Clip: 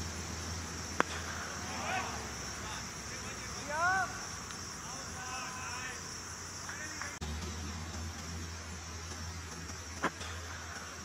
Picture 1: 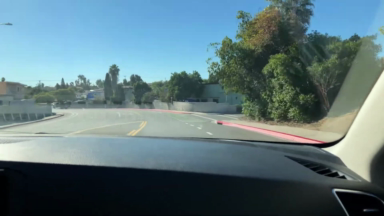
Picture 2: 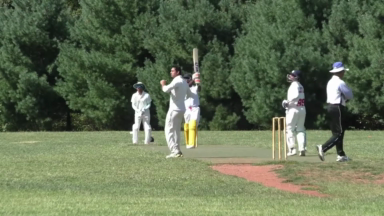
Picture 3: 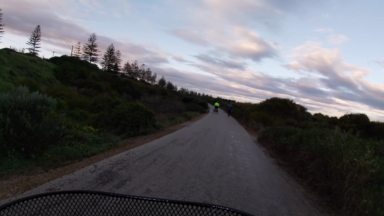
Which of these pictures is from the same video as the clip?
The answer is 2